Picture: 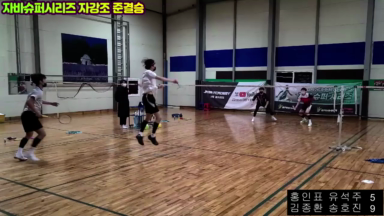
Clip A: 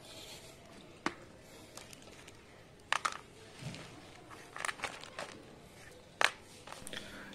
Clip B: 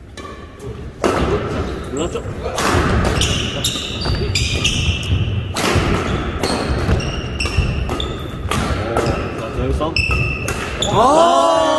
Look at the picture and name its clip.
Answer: B